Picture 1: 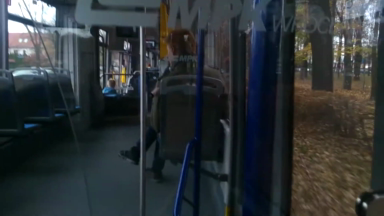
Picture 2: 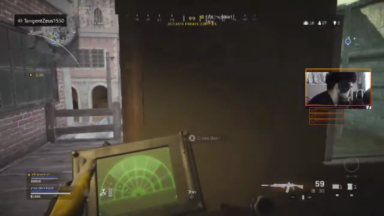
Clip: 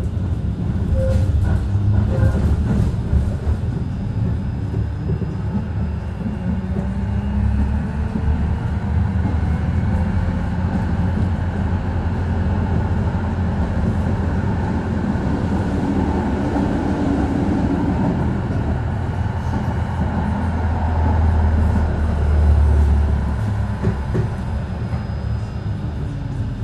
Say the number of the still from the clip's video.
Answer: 1